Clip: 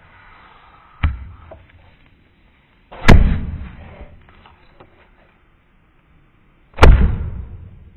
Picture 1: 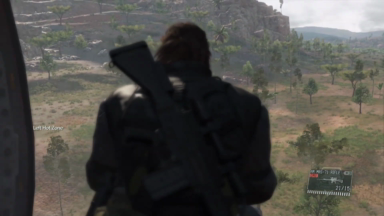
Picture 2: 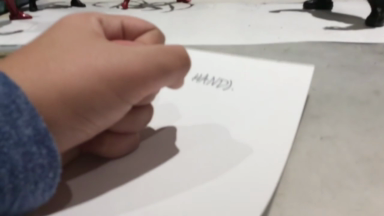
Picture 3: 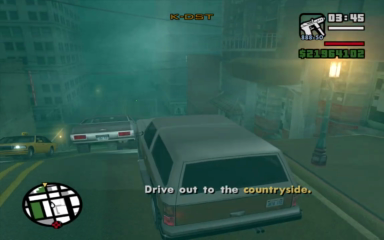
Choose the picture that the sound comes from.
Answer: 2